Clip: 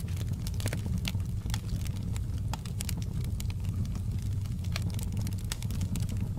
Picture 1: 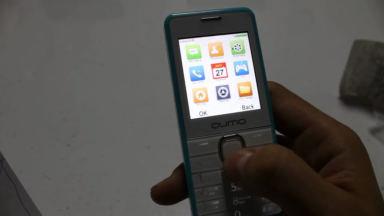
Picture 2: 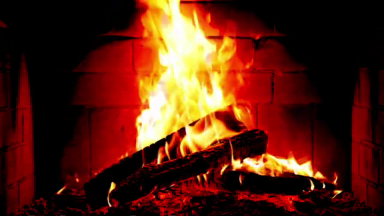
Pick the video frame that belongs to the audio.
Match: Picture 2